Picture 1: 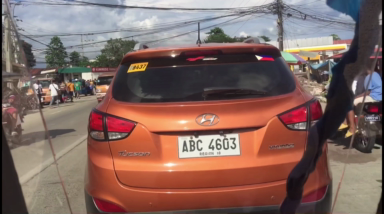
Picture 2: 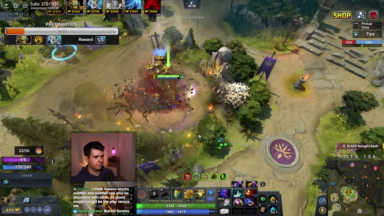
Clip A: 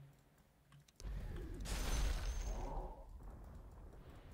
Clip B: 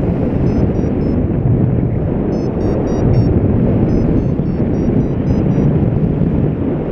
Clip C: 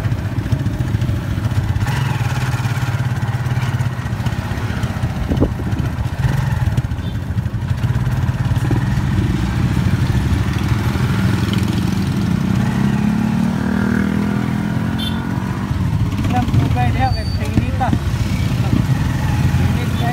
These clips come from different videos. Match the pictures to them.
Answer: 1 C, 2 A